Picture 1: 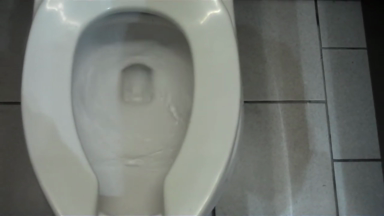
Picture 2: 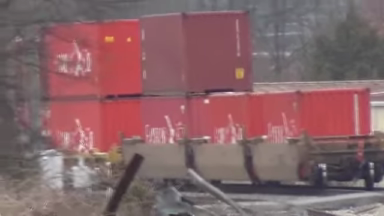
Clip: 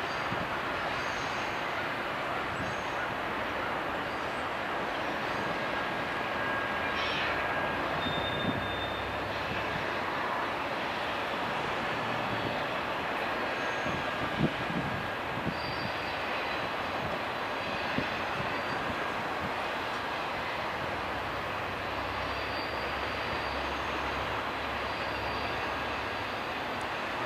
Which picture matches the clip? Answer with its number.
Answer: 2